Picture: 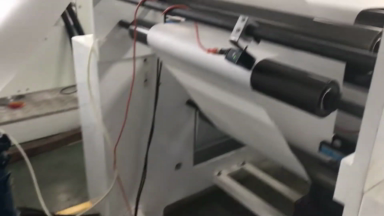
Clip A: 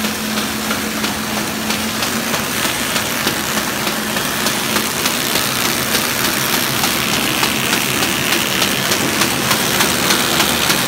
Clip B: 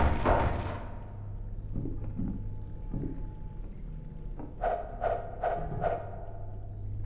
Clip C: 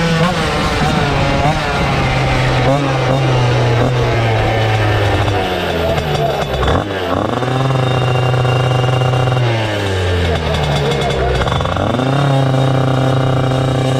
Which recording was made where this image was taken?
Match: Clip A